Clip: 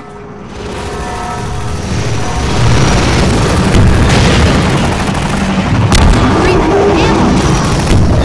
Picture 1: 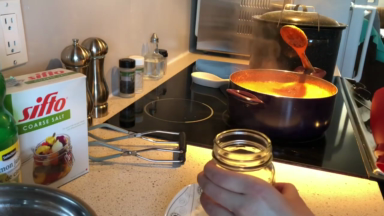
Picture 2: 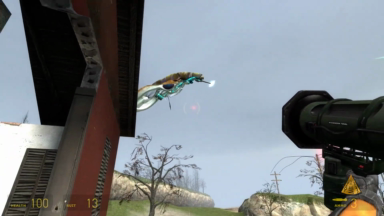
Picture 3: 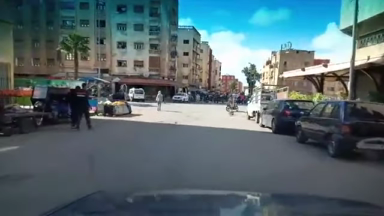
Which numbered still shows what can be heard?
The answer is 2